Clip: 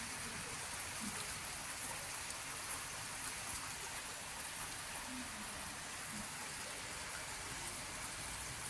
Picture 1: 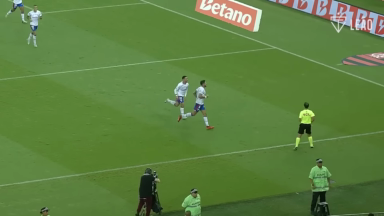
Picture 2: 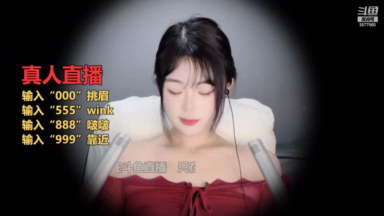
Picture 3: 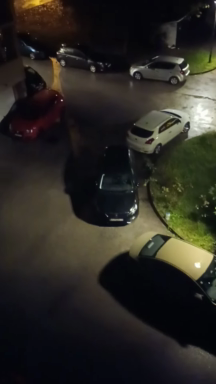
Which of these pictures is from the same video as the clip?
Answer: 3